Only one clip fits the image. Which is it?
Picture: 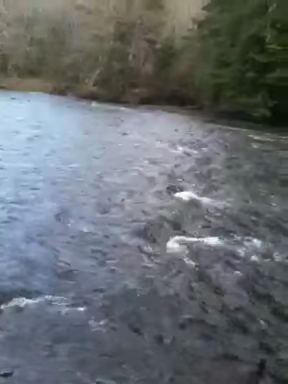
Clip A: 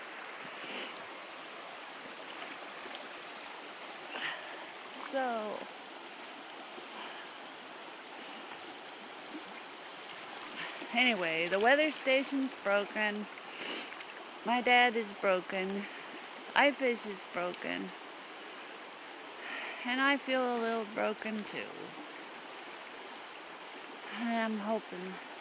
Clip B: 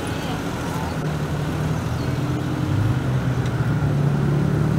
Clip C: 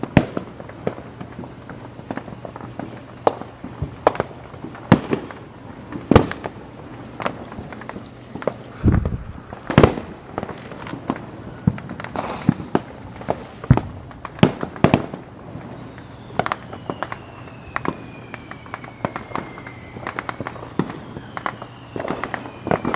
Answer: A